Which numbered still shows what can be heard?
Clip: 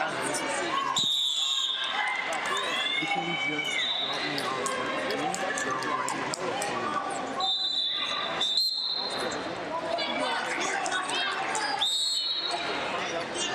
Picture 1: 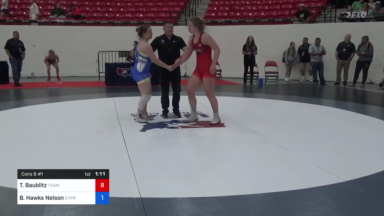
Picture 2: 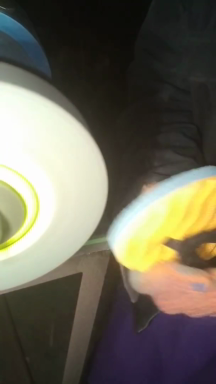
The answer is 1